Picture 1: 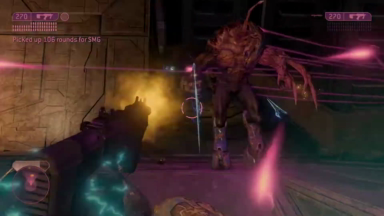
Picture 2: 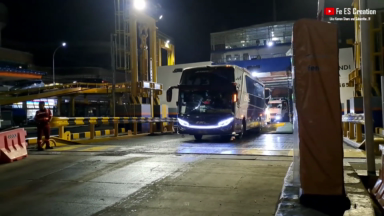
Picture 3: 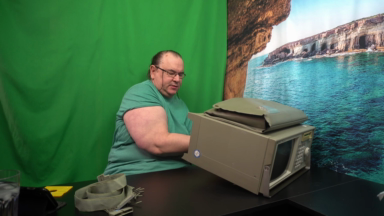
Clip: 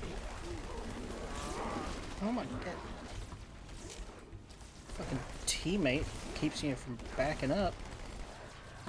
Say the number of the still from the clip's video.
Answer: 1